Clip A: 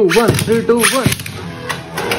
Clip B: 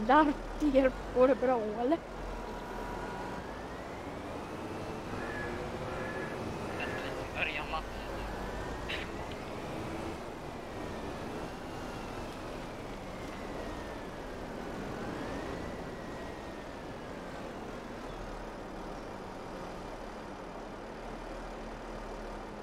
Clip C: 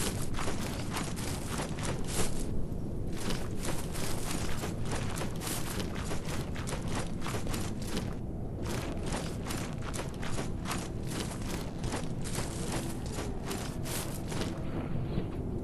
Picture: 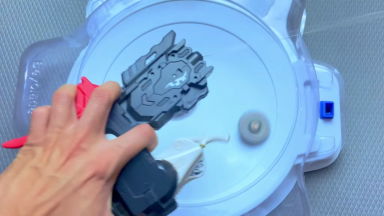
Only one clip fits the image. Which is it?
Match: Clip A